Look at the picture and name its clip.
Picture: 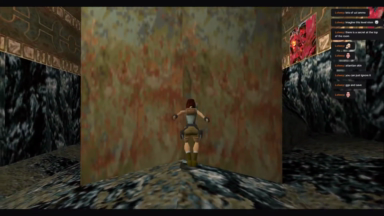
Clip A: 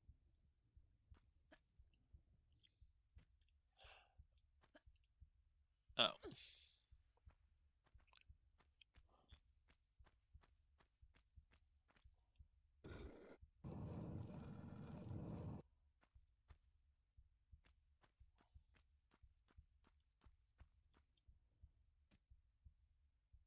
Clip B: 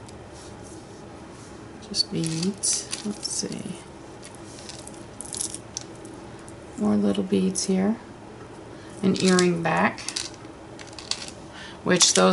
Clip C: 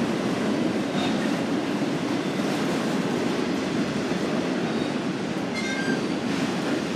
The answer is A